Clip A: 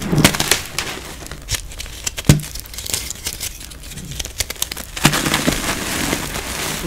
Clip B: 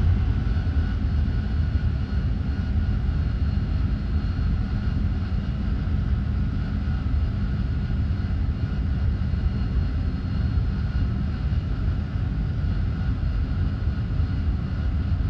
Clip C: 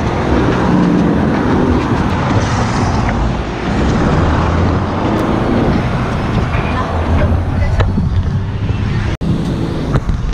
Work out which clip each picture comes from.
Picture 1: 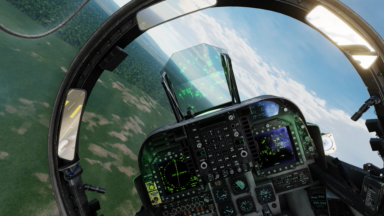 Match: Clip B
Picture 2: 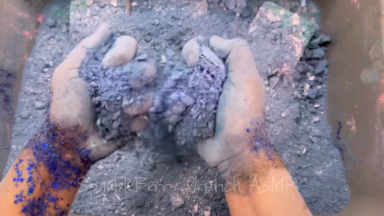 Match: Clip A